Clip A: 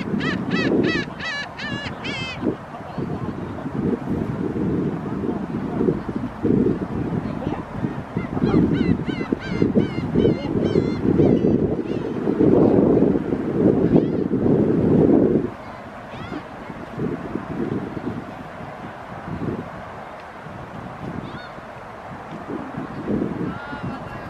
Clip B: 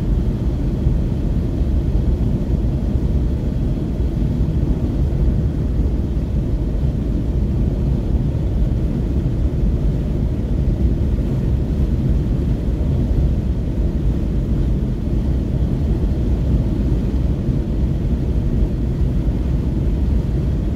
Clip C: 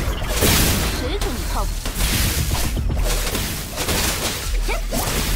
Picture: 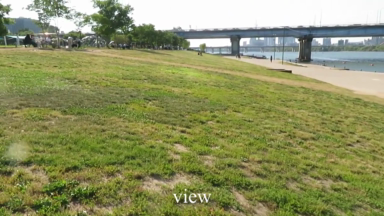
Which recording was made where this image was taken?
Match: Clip A